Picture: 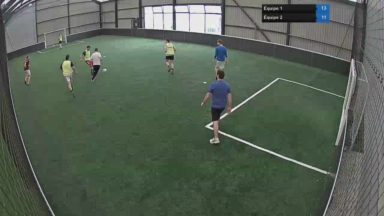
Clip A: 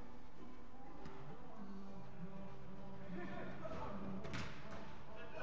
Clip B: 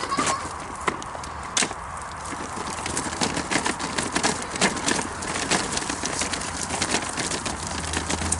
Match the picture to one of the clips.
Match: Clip A